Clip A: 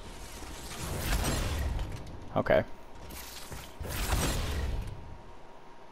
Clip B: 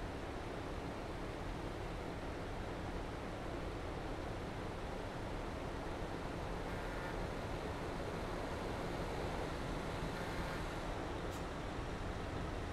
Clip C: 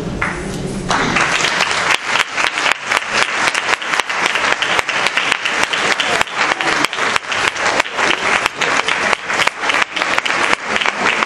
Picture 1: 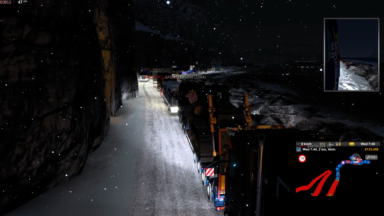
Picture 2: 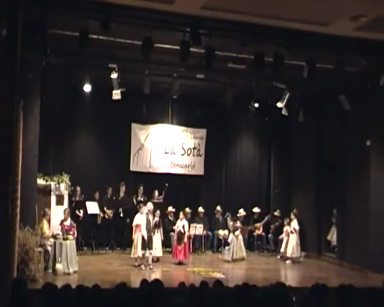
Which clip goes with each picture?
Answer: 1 B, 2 C